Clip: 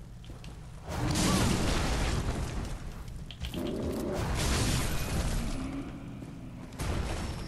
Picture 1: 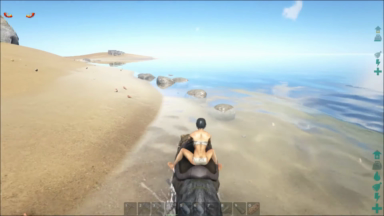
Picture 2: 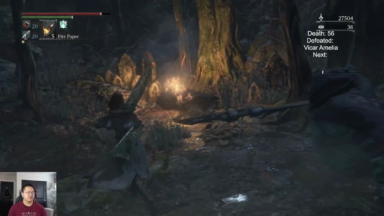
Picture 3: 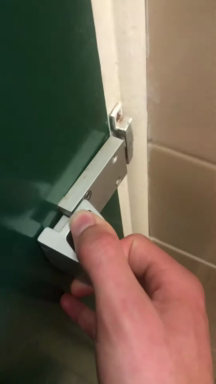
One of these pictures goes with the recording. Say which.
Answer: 2